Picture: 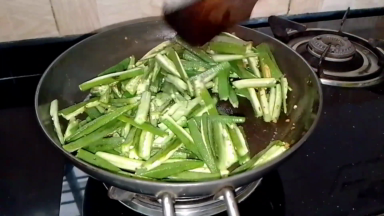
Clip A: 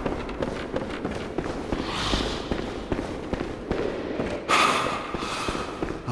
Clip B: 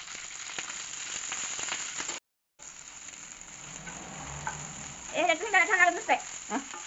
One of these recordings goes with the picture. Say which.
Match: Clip B